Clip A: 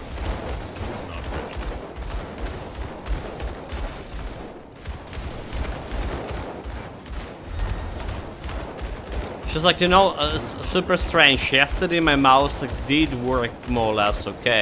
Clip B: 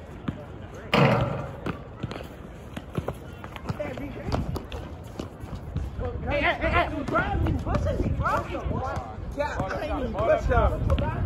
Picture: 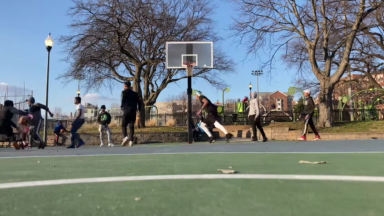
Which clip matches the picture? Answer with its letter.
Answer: B